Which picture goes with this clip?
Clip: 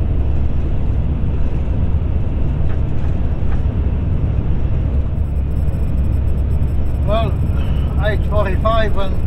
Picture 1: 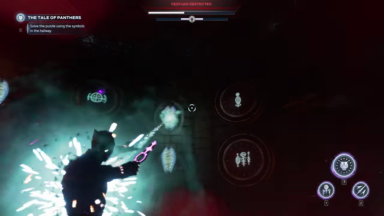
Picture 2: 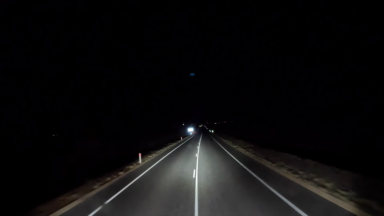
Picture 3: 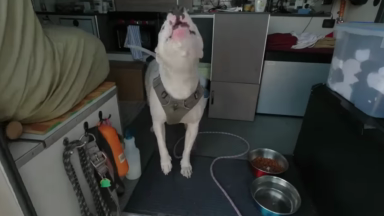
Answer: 2